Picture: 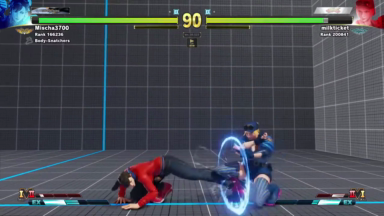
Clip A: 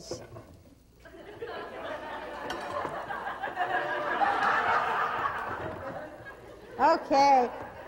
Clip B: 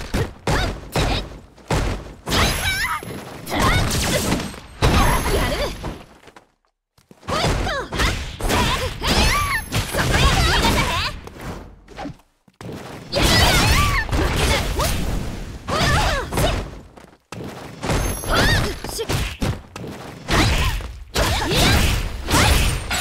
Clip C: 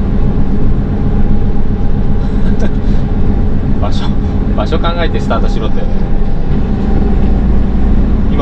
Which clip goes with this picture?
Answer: B